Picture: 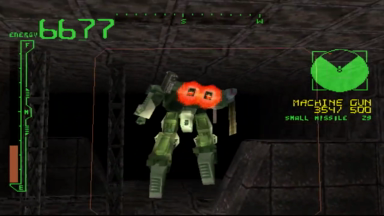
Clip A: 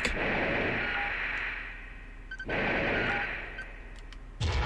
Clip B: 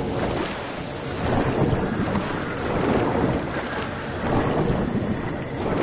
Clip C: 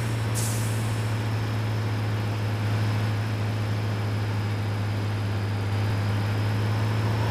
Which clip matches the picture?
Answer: A